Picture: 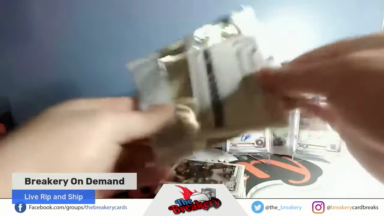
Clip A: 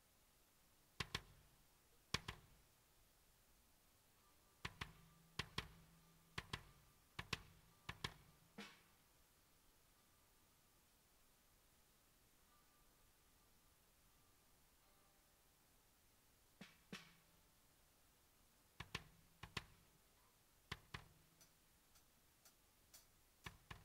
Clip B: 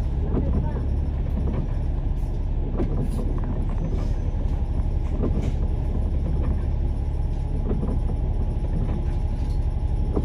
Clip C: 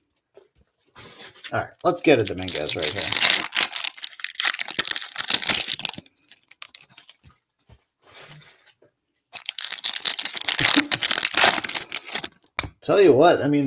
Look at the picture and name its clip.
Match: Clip C